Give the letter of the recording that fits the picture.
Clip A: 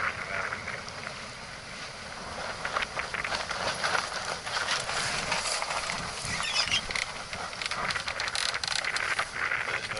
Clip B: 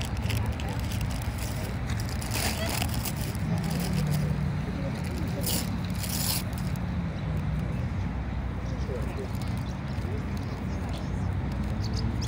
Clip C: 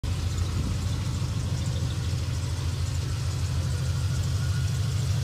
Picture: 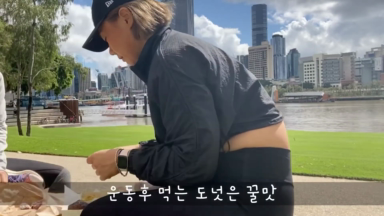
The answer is B